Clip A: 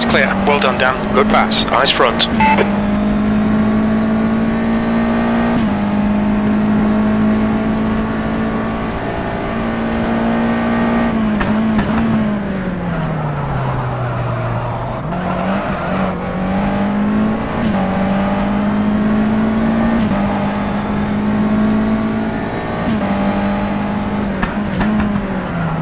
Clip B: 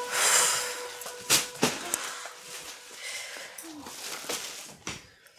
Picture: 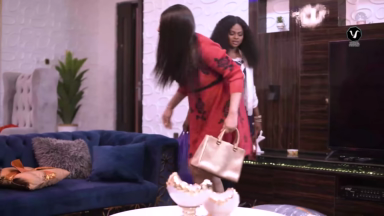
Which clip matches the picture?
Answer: B